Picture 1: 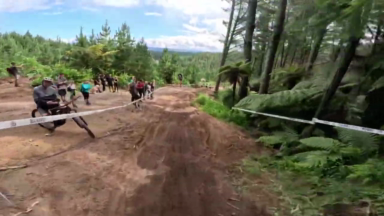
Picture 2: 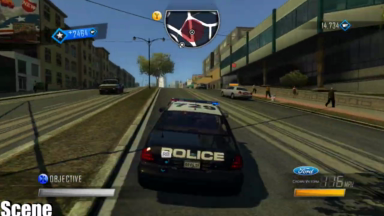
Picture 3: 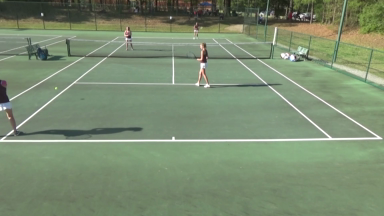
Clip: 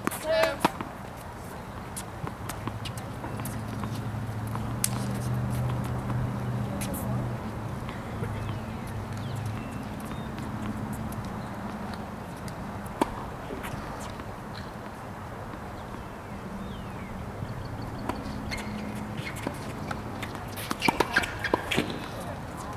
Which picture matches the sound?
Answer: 3